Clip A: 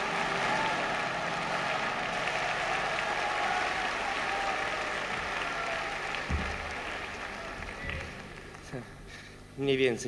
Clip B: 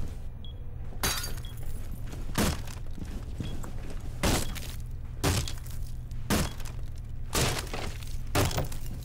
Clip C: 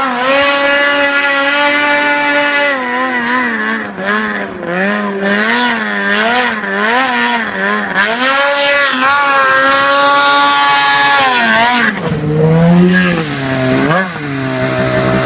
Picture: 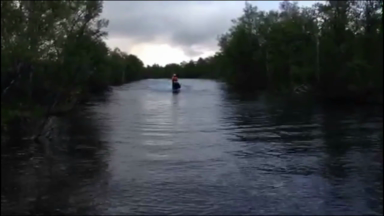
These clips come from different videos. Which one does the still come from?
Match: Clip C